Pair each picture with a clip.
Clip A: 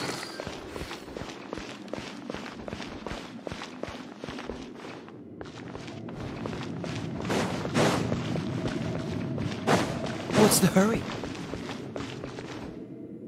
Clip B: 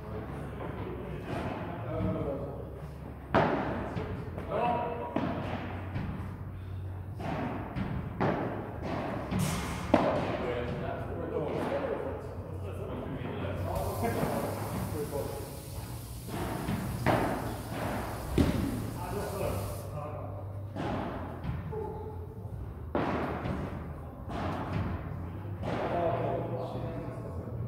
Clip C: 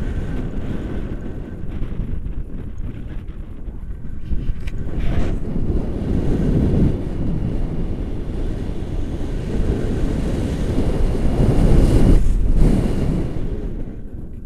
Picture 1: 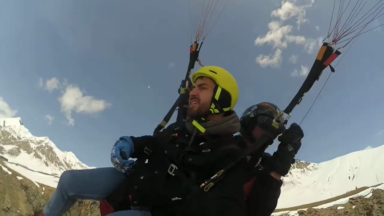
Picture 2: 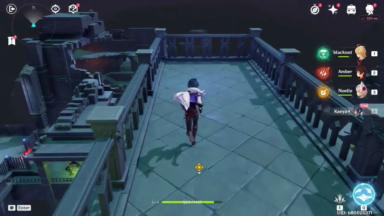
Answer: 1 C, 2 A